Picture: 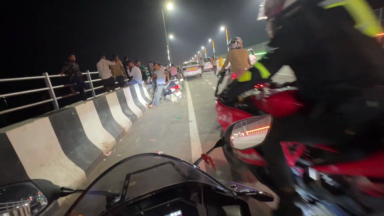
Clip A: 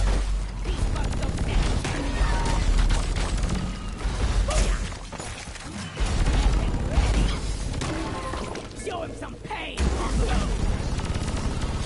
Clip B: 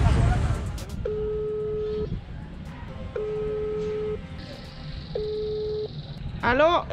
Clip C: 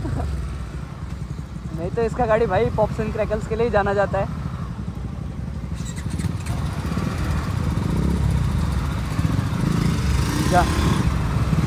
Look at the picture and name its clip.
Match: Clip C